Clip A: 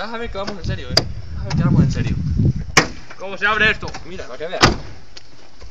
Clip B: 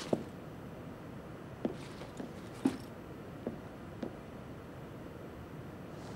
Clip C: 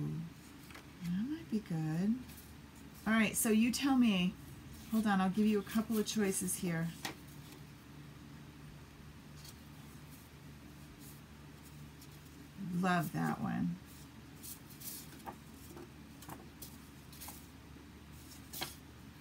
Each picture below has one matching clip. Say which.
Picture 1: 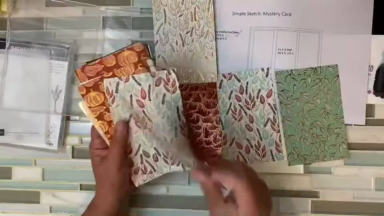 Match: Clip C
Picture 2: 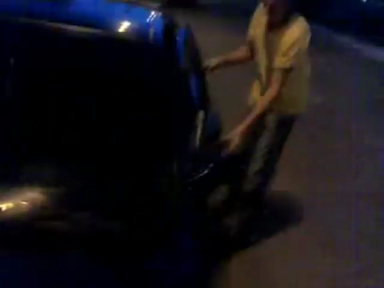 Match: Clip A